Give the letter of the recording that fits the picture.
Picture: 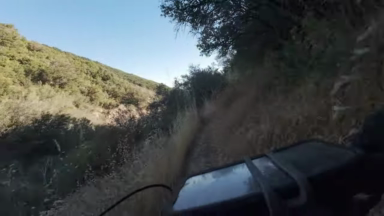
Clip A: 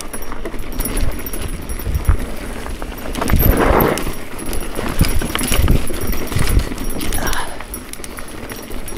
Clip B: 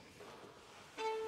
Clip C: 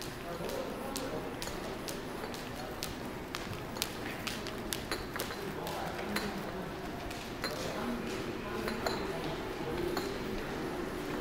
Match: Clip A